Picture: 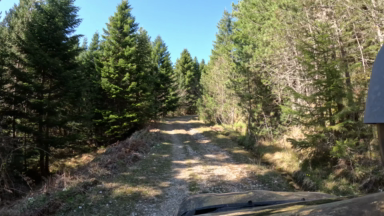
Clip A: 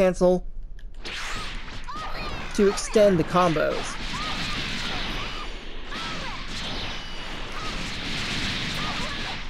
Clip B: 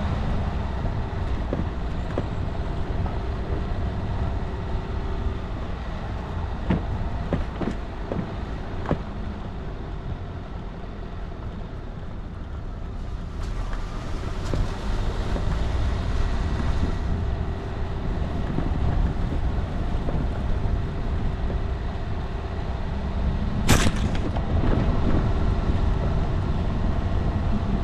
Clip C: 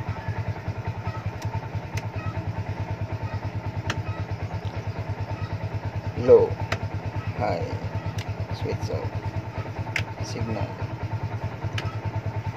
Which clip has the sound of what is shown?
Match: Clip B